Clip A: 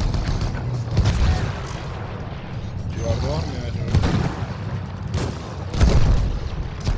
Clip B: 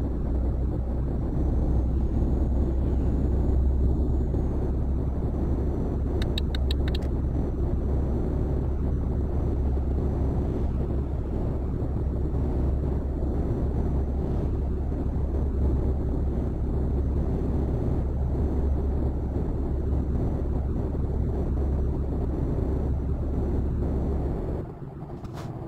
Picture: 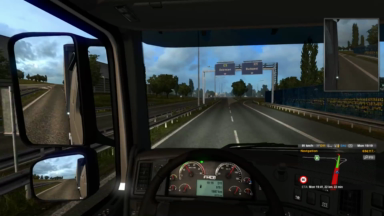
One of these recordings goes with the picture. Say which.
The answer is B